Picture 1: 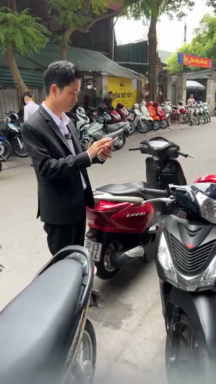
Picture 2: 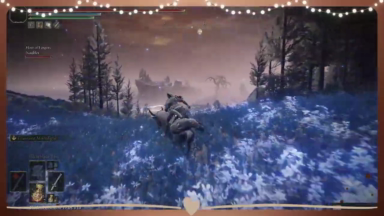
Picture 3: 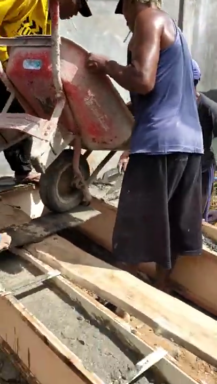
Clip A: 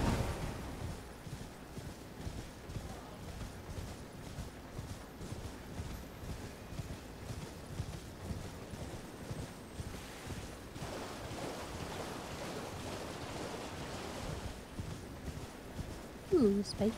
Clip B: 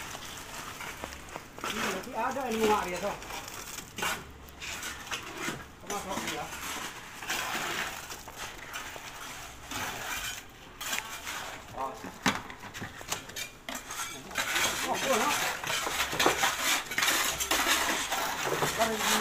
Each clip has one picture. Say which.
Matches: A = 2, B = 3